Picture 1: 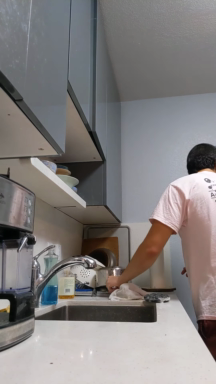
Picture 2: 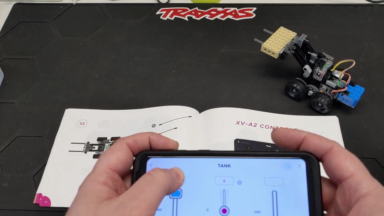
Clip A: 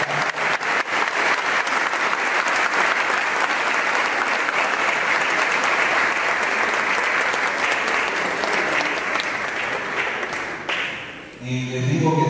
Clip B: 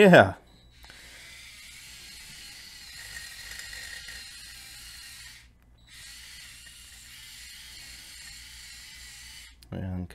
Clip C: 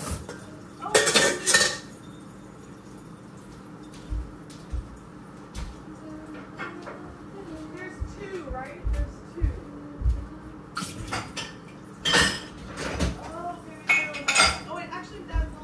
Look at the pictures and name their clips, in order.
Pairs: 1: C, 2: B